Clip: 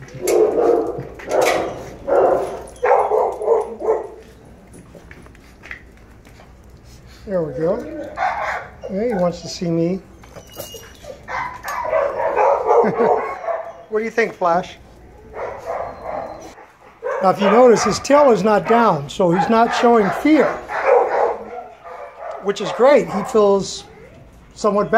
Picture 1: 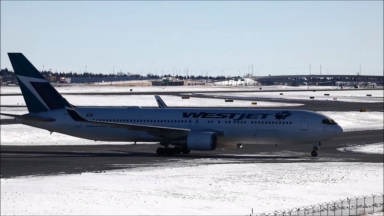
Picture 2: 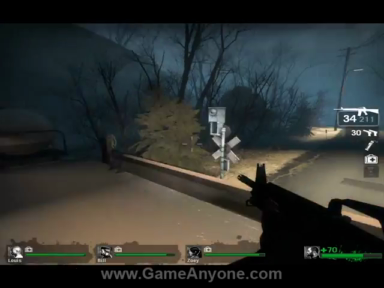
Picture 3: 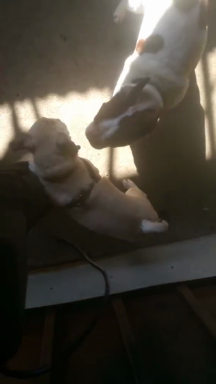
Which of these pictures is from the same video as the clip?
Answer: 3